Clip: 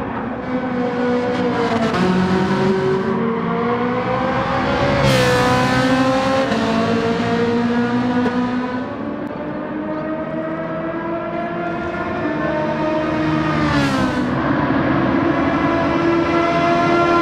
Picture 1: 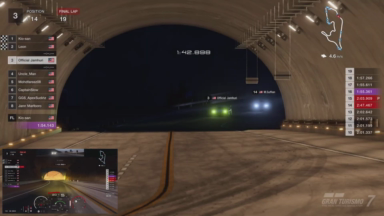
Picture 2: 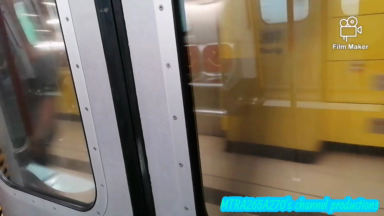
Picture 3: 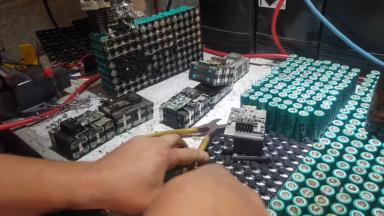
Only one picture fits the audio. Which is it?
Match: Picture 1